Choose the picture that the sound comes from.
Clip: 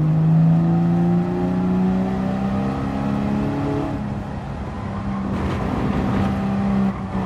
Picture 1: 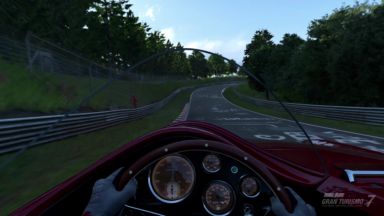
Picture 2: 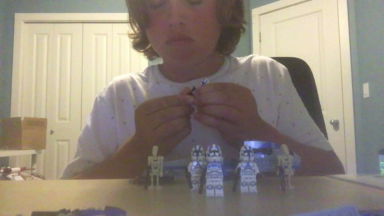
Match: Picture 1